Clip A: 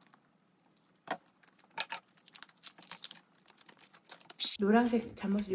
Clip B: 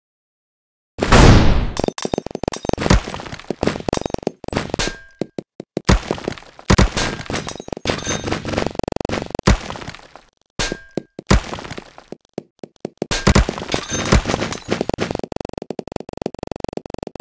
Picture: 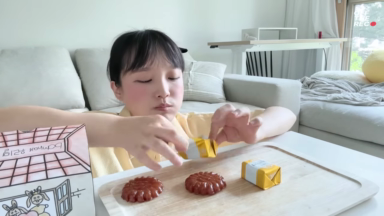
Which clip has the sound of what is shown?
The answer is A